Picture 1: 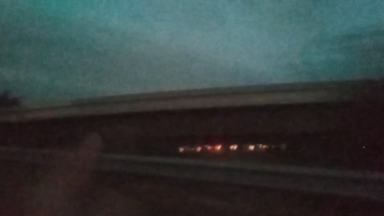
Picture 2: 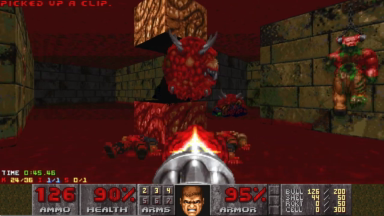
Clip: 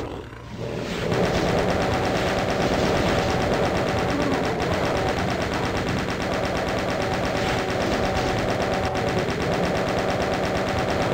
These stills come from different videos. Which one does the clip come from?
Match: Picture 2